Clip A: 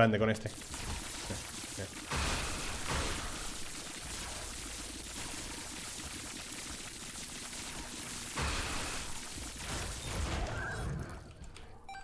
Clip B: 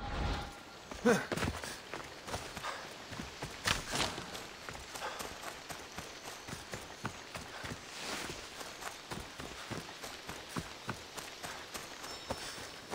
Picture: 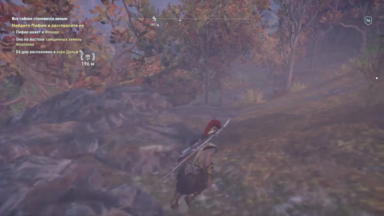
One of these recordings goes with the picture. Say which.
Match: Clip B